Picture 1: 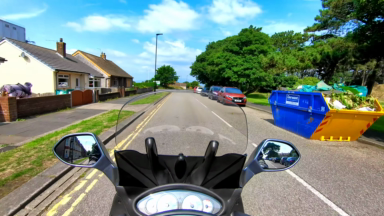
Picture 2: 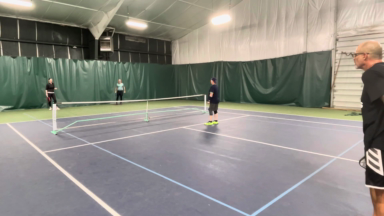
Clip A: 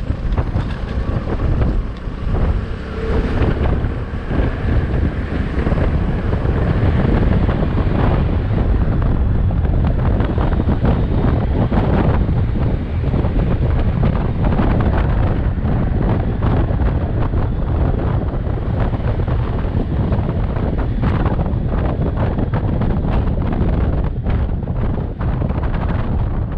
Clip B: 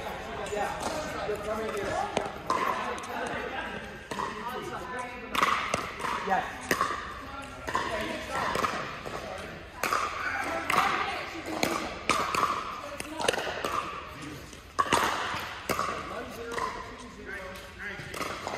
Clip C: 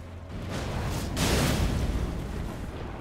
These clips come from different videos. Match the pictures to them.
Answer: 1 A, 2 B